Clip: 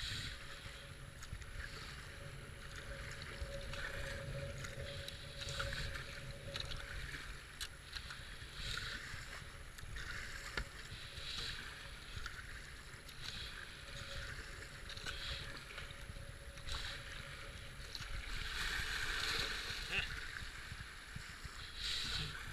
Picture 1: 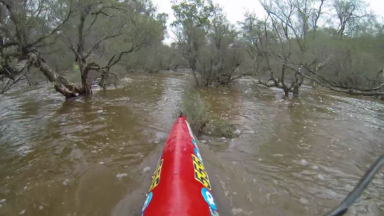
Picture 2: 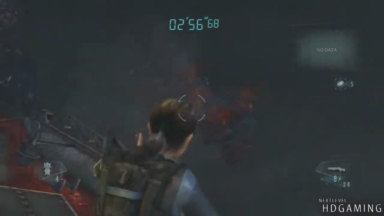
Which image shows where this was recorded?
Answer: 1